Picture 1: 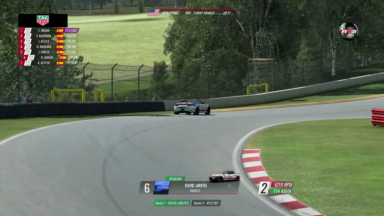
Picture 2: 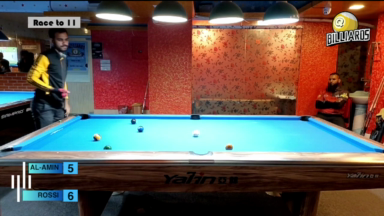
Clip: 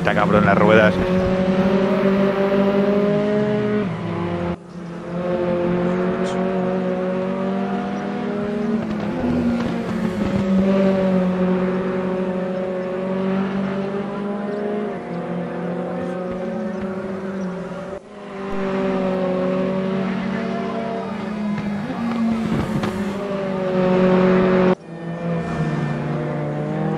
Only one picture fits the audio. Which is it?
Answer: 1